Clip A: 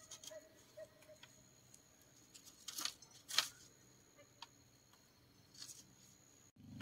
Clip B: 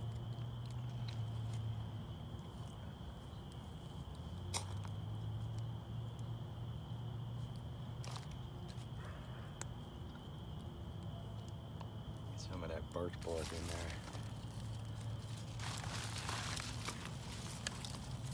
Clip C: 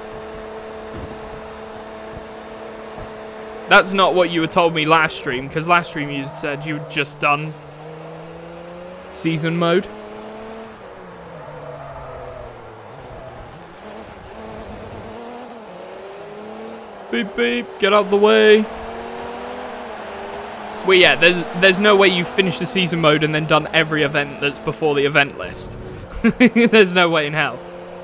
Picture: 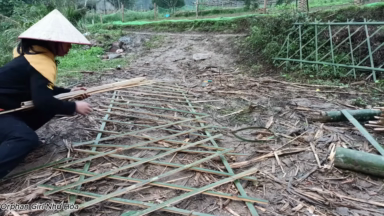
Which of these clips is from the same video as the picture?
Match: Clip A